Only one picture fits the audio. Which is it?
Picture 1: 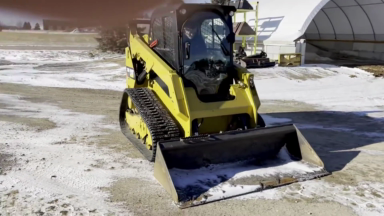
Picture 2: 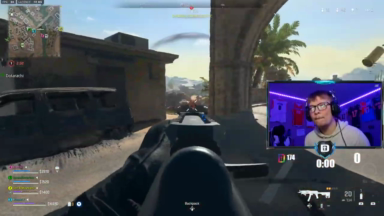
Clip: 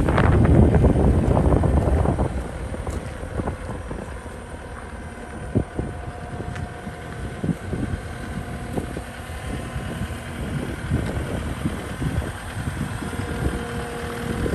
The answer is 1